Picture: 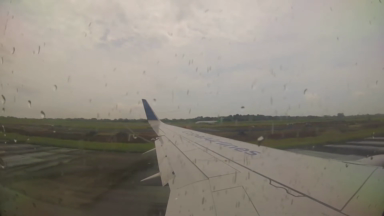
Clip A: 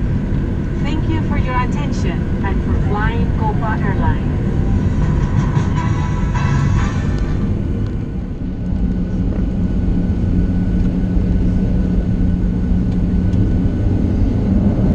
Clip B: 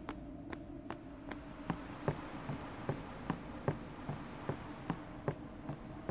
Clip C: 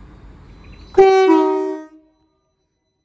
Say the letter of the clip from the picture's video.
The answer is A